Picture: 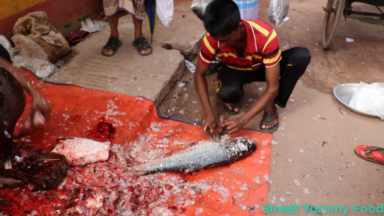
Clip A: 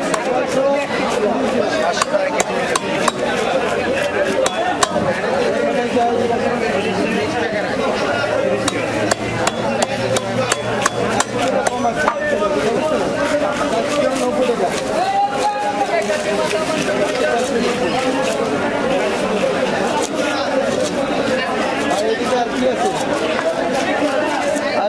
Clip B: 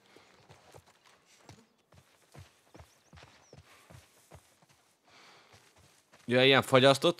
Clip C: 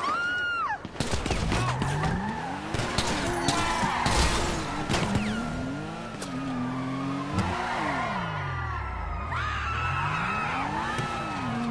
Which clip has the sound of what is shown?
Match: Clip A